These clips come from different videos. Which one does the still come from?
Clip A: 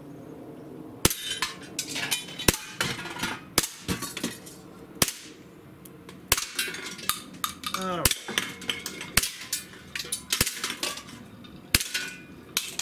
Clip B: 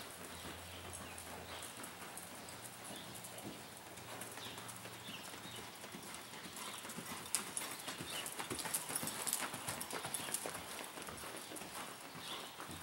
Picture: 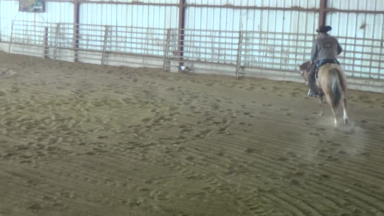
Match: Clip B